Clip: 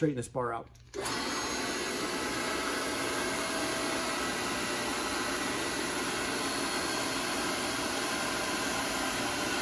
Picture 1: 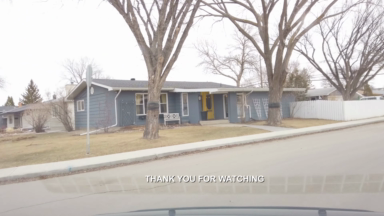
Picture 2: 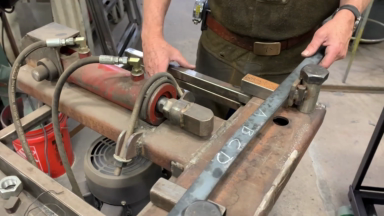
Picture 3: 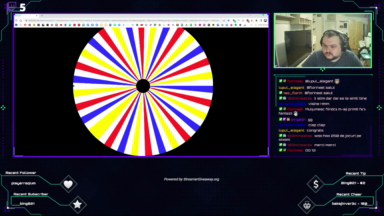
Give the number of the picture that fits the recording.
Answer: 2